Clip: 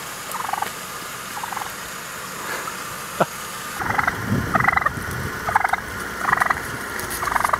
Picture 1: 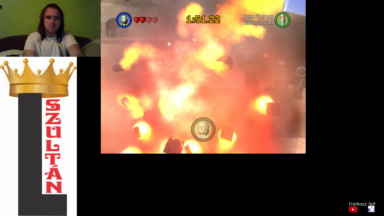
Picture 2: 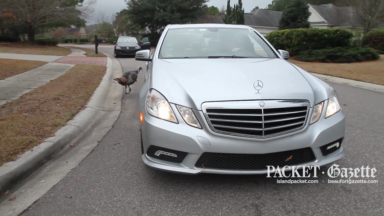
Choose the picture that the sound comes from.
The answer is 2